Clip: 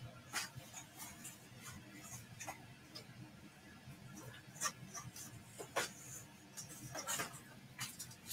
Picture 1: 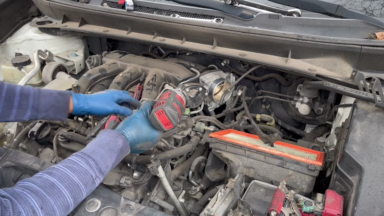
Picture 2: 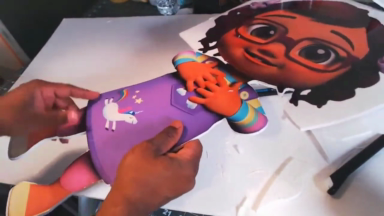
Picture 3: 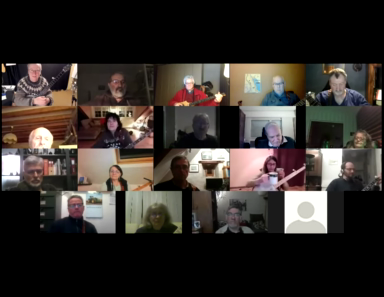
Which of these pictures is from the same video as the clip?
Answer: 2